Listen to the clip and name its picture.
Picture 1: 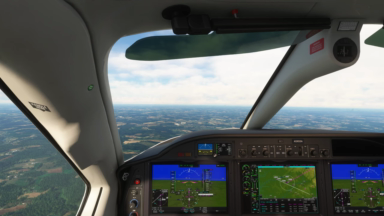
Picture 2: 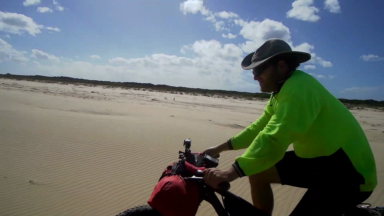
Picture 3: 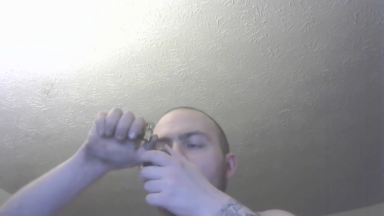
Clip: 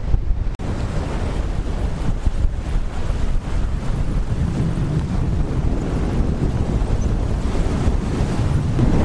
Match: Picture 2